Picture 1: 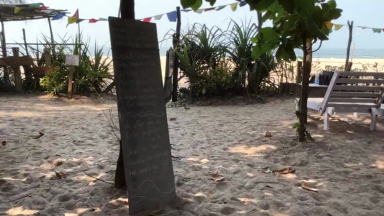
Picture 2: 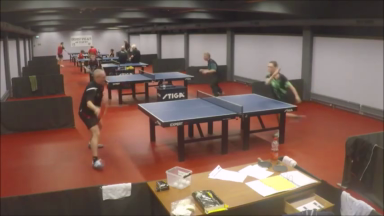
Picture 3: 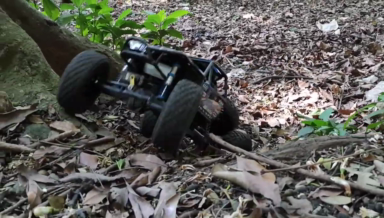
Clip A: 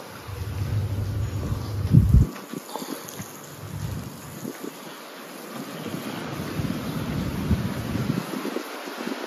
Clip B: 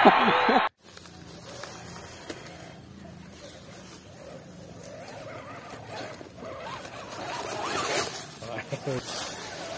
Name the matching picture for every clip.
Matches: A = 1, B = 3